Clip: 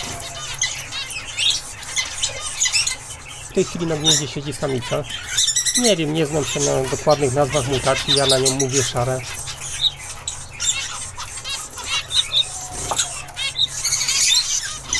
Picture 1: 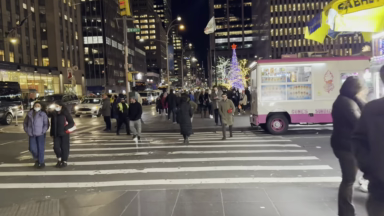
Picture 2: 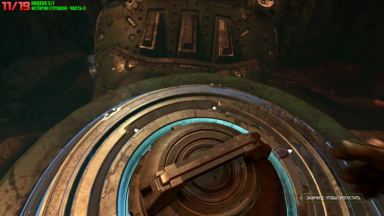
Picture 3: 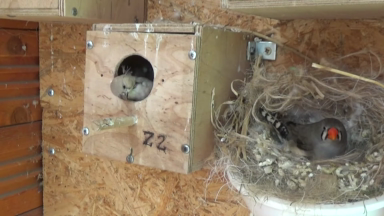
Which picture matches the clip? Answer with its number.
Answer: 3